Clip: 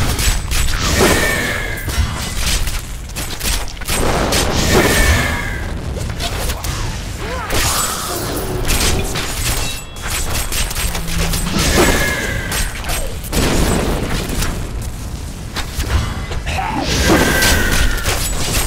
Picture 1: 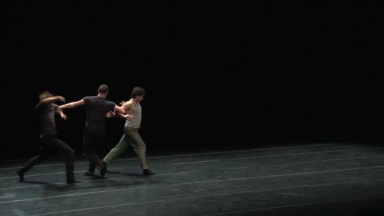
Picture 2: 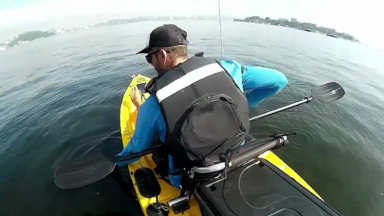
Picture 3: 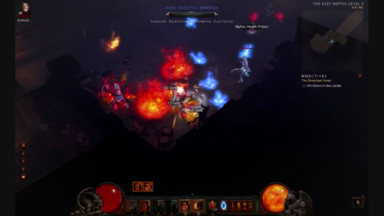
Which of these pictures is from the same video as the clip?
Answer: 3